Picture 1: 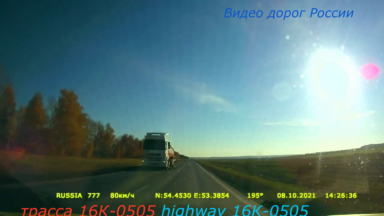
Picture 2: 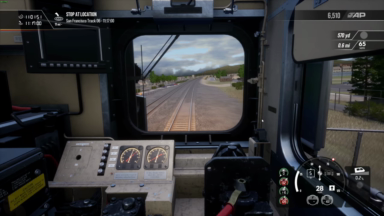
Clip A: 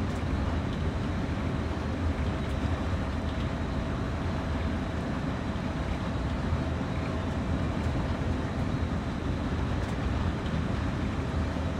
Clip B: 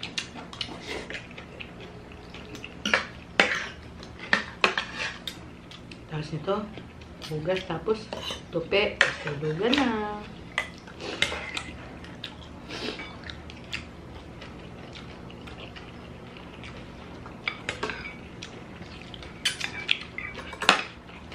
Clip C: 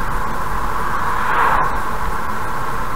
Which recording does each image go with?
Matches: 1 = C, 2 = A